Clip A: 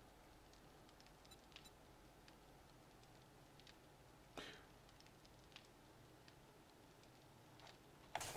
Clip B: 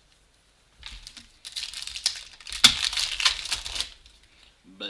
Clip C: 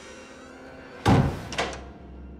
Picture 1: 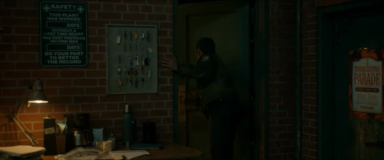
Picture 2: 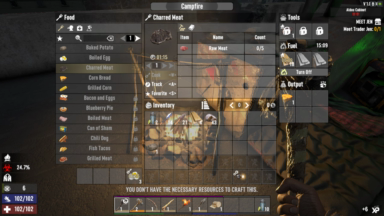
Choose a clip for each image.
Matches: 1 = C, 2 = A